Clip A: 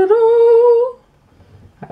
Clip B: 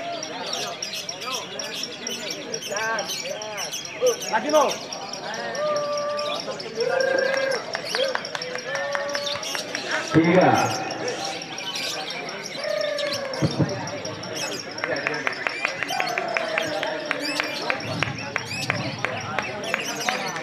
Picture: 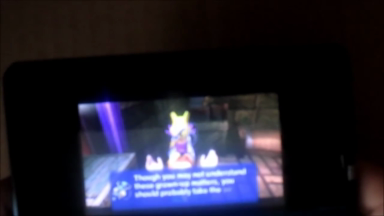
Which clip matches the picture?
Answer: A